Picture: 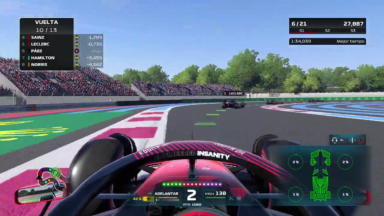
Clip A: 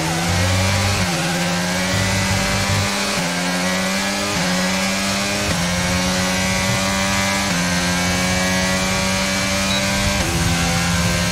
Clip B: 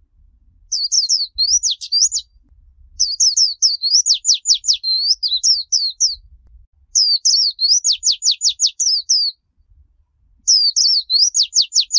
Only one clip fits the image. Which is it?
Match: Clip A